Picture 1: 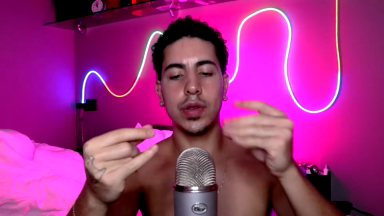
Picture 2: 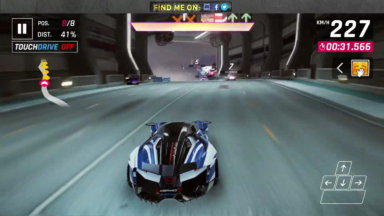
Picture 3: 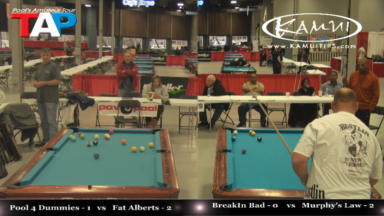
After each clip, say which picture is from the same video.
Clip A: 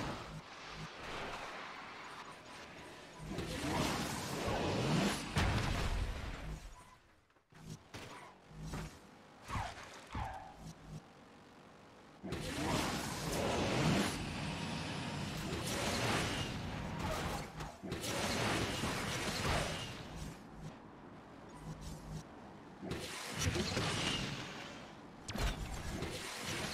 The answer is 2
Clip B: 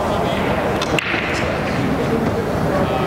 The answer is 3